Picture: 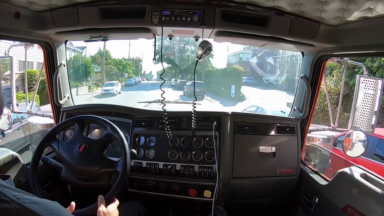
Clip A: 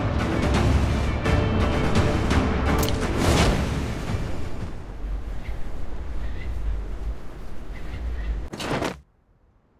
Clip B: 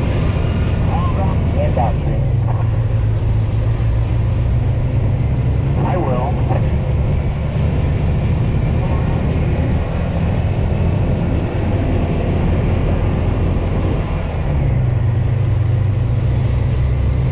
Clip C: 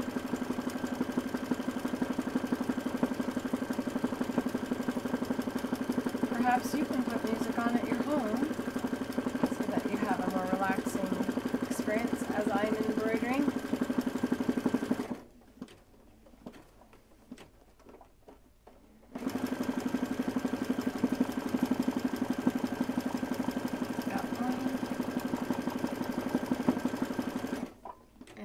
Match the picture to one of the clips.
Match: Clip B